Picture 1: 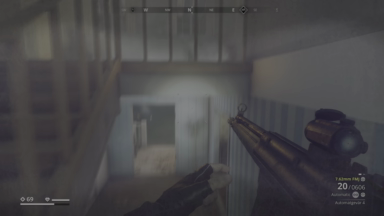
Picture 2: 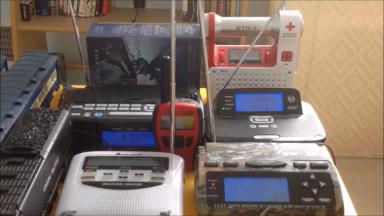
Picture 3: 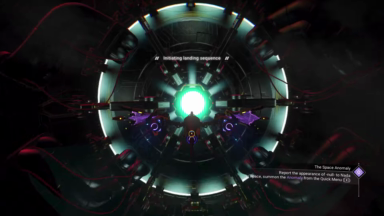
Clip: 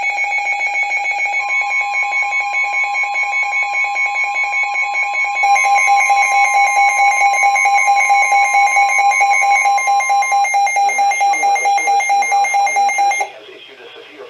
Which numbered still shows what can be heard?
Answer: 2